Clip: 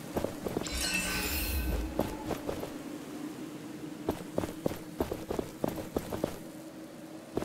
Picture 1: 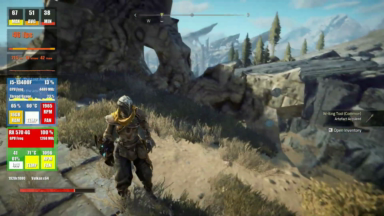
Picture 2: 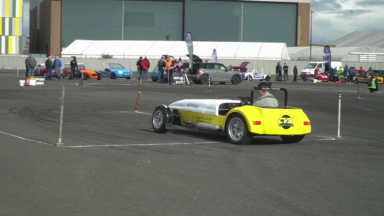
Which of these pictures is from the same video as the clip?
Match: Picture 1